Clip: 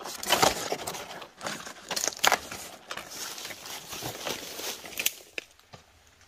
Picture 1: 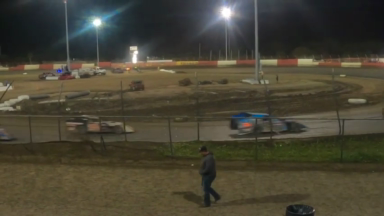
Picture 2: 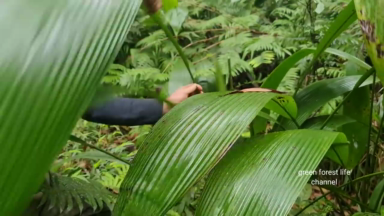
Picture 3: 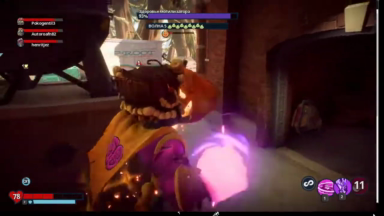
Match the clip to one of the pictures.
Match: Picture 2